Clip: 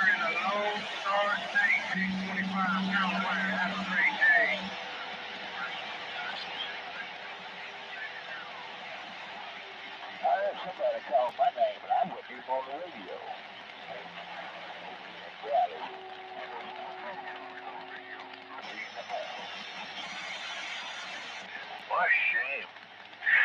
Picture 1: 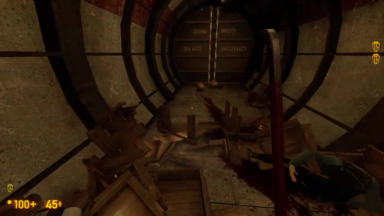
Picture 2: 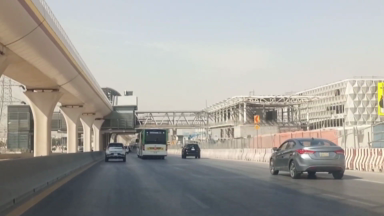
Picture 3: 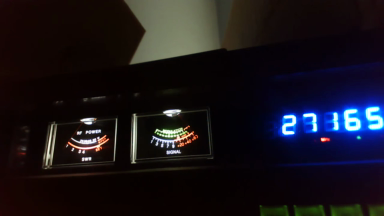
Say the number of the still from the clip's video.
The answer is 3